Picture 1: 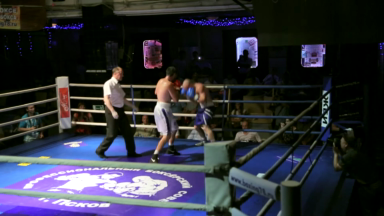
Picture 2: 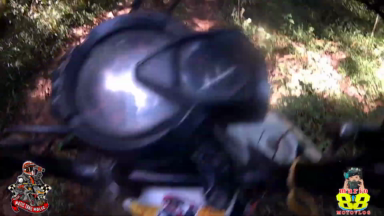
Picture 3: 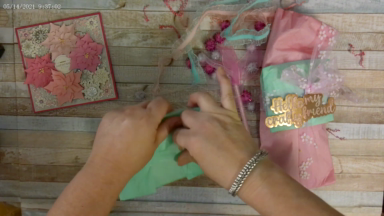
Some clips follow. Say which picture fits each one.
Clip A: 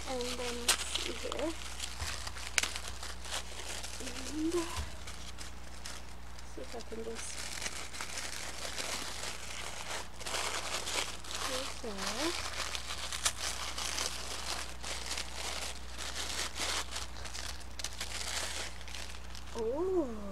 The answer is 3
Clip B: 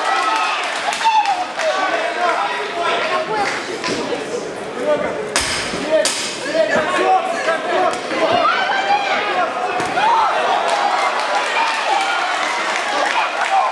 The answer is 1